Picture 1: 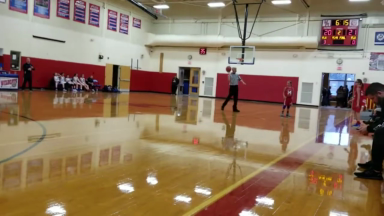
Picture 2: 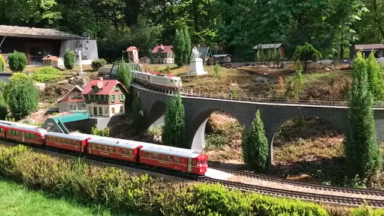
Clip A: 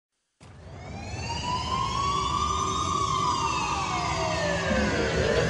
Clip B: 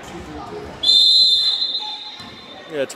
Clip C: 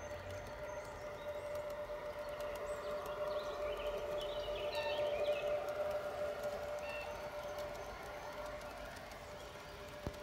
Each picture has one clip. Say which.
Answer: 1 B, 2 C